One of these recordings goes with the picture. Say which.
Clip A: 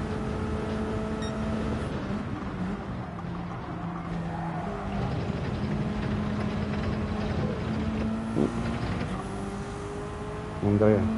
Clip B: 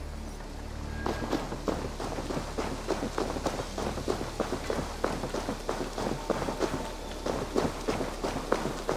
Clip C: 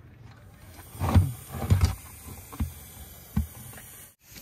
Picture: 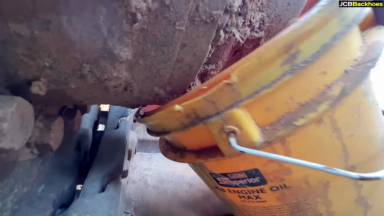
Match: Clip C